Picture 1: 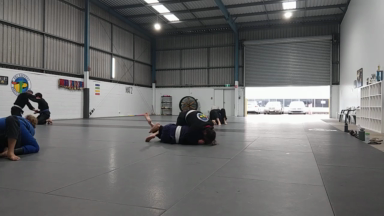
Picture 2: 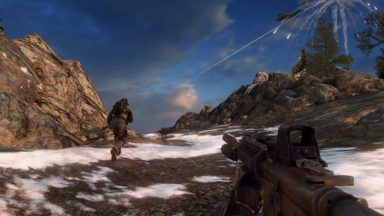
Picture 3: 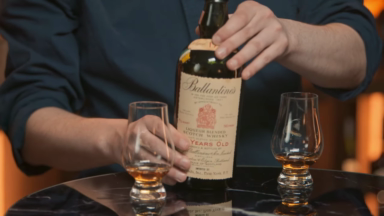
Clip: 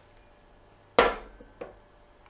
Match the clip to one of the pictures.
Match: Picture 3